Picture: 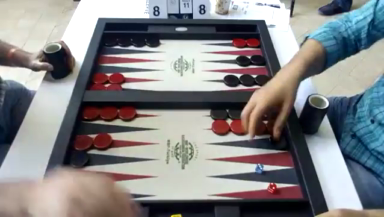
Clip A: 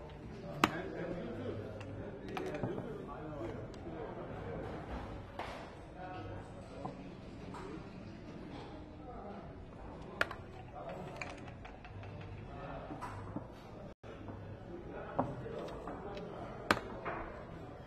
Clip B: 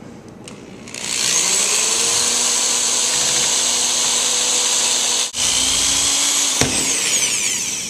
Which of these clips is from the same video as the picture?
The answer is A